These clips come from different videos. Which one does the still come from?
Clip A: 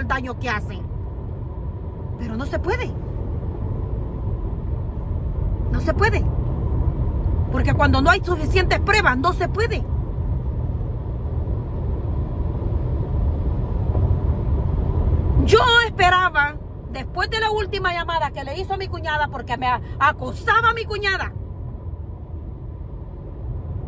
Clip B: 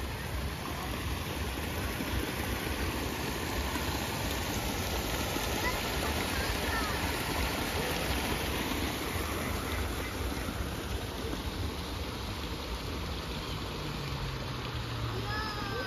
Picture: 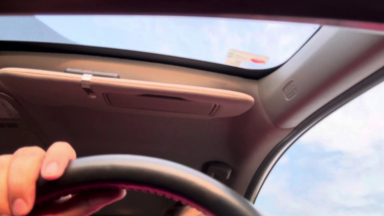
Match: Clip A